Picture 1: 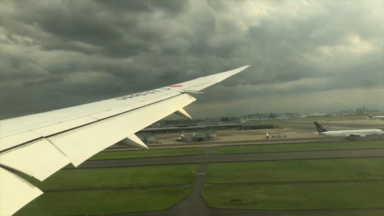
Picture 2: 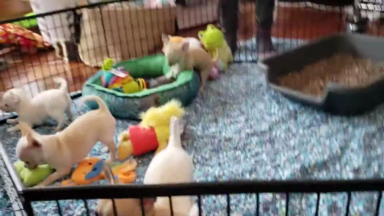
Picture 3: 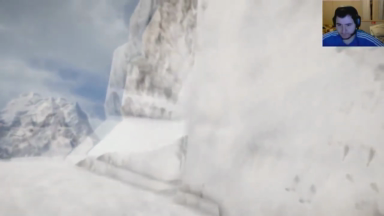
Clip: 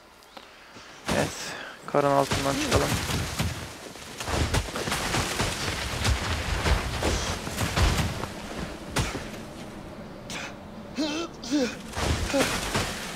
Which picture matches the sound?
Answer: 3